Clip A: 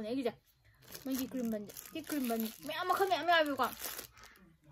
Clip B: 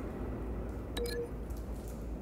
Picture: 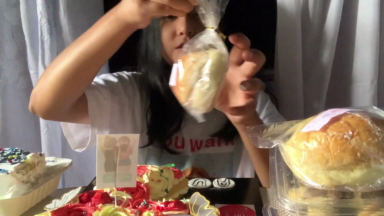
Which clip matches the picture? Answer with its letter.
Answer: A